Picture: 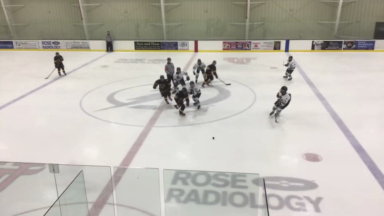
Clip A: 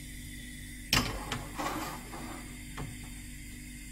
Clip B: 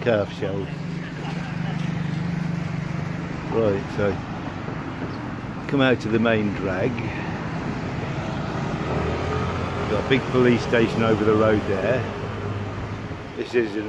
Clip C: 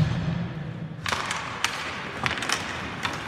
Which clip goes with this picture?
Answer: C